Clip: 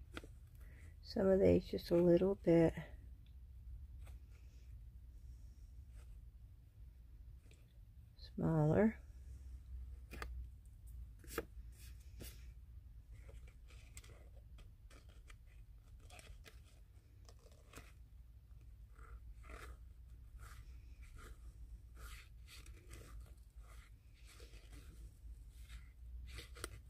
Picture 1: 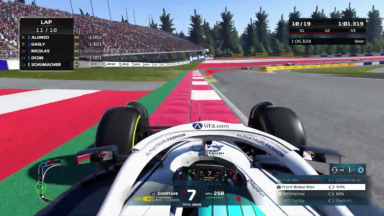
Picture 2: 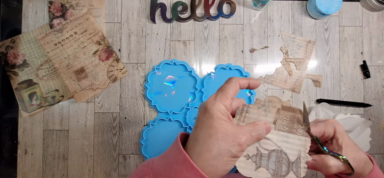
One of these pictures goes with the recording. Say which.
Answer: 2